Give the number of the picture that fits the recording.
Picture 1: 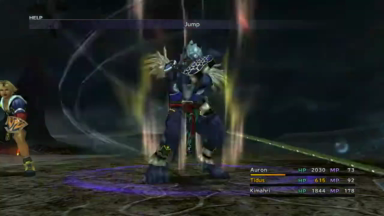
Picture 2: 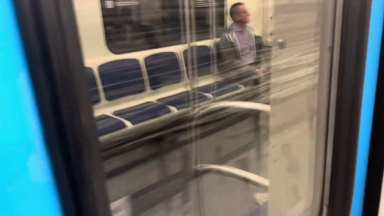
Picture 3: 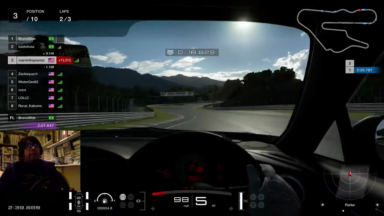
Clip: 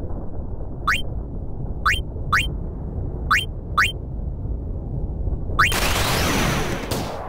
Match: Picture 1